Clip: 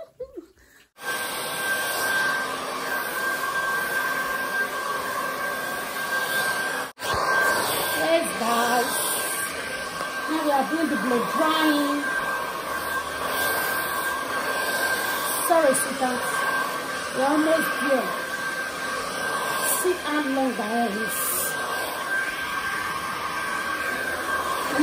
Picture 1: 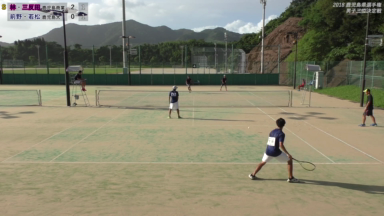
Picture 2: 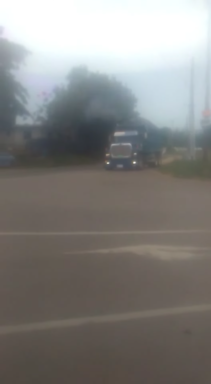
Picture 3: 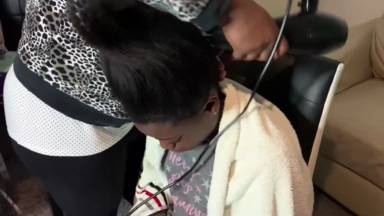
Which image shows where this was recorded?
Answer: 3